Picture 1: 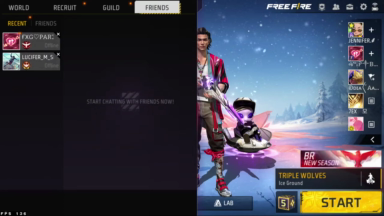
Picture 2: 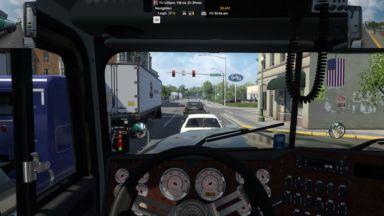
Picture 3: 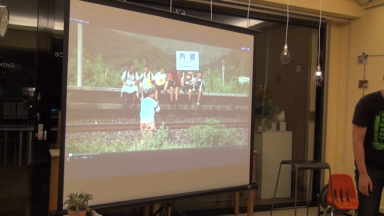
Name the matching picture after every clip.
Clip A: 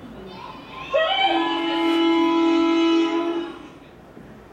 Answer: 3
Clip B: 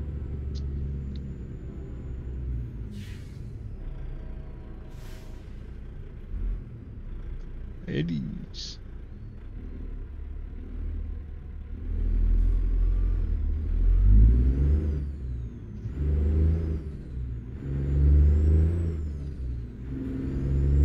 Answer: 2